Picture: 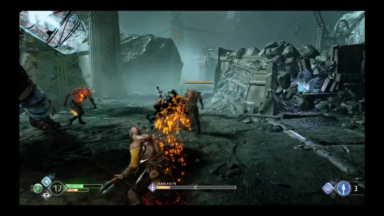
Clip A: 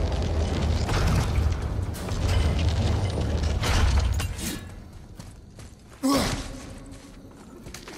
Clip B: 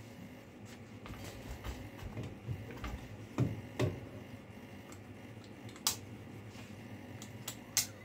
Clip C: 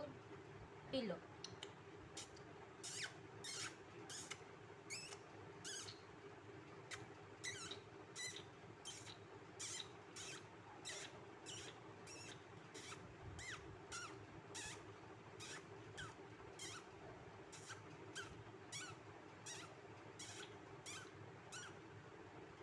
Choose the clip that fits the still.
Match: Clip A